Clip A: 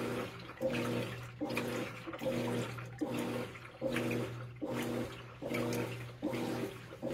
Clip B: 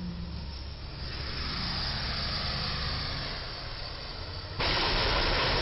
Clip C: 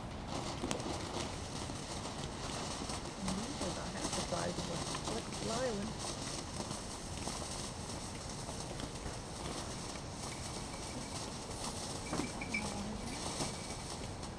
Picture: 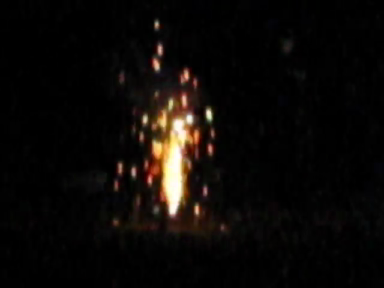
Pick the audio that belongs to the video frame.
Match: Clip C